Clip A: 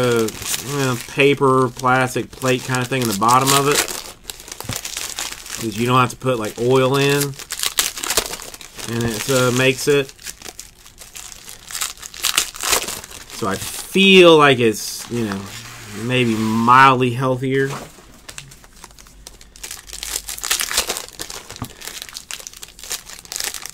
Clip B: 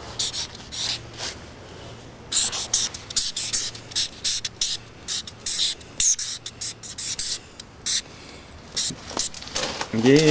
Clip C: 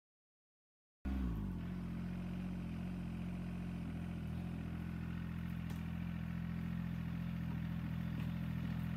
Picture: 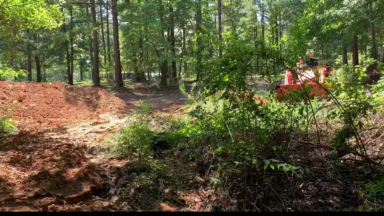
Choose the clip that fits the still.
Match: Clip C